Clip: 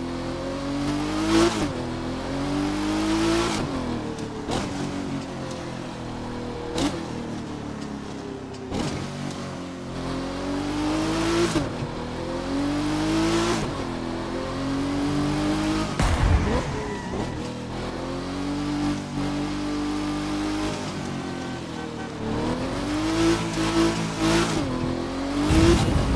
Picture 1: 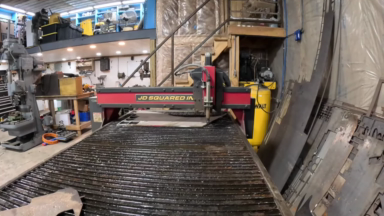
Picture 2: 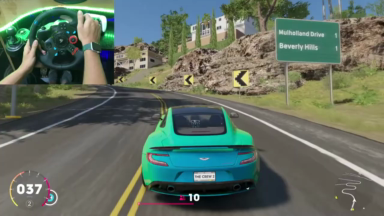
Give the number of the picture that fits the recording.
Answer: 2